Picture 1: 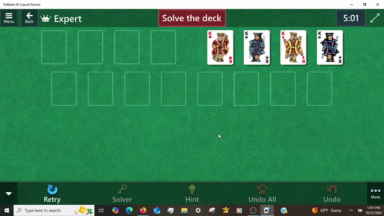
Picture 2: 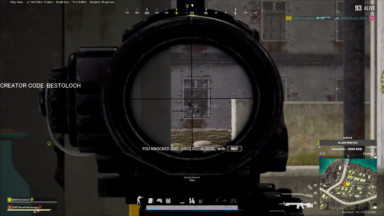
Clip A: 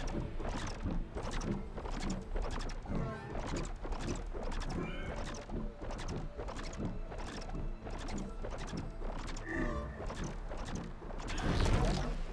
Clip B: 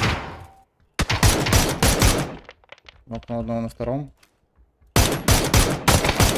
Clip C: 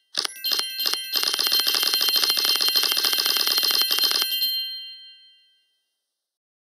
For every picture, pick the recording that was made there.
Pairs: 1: C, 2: B